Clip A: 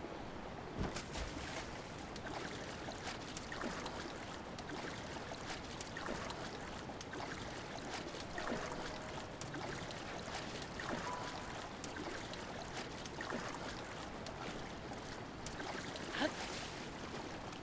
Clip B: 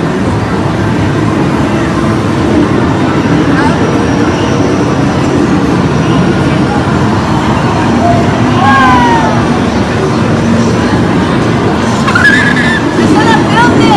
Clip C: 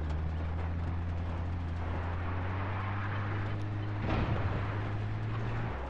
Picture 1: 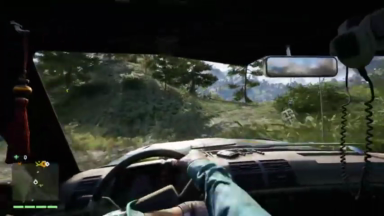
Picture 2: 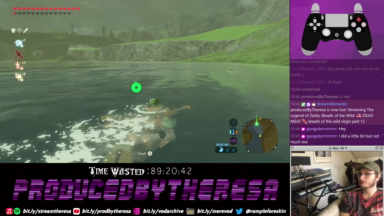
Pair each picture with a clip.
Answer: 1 C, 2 A